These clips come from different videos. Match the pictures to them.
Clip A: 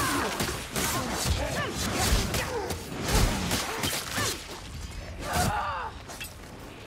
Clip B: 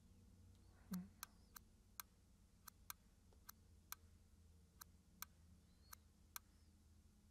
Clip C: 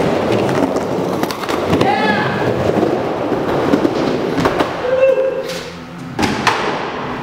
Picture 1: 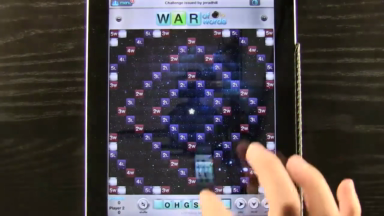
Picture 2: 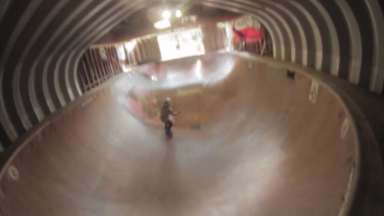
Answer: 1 B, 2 C